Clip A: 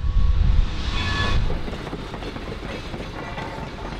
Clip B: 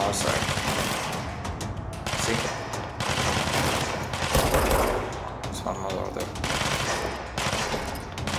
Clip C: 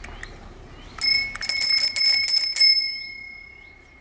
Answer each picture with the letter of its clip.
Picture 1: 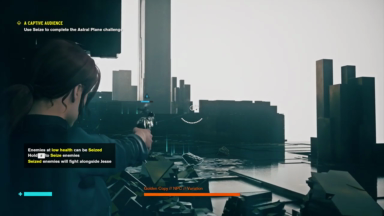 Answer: B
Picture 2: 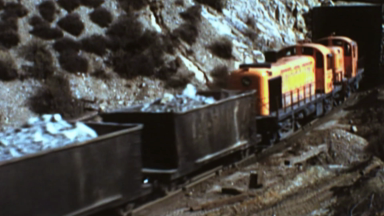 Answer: A